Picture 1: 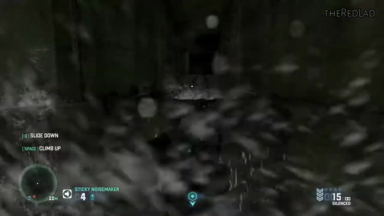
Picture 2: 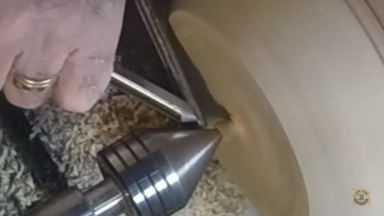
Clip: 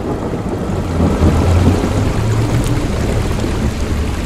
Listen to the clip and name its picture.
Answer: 1